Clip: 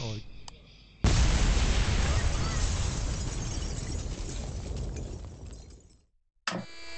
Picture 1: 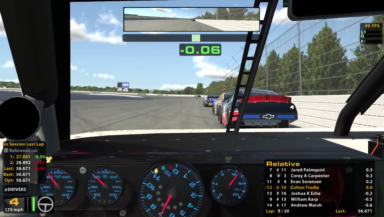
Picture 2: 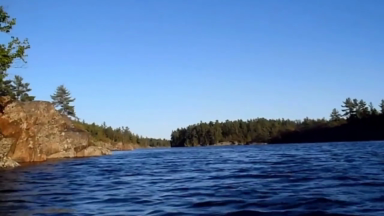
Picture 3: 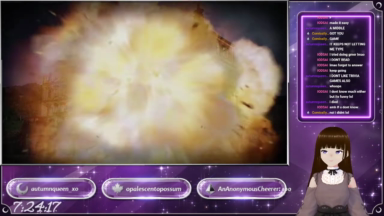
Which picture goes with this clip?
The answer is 3